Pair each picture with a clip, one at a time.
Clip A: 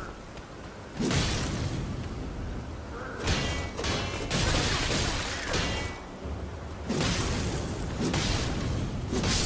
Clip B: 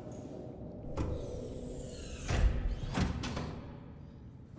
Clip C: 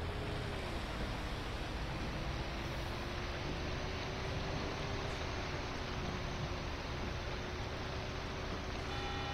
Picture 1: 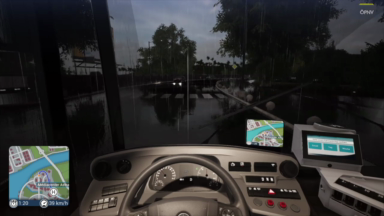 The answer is C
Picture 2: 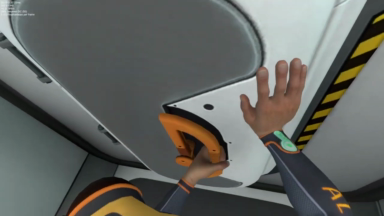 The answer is B